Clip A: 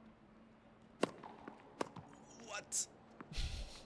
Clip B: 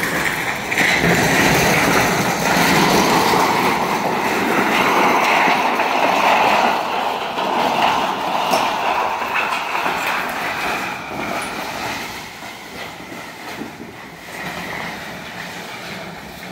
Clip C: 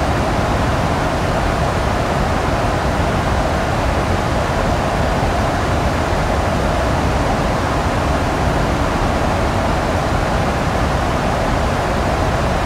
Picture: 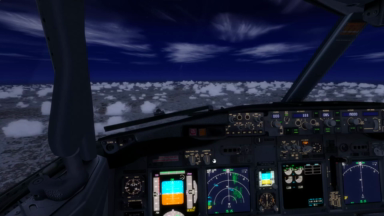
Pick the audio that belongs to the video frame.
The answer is C